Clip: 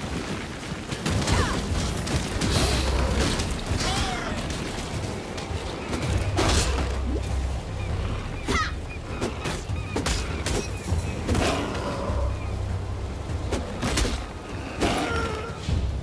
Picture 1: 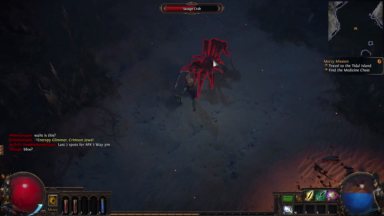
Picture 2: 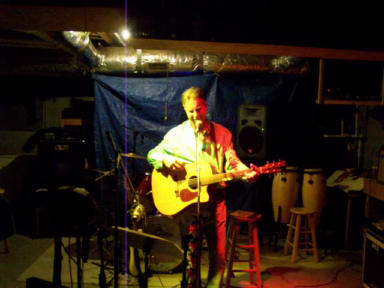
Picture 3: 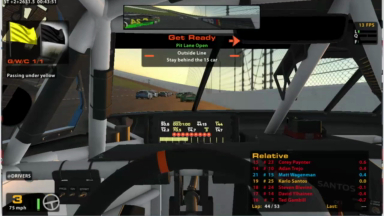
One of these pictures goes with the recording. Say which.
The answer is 1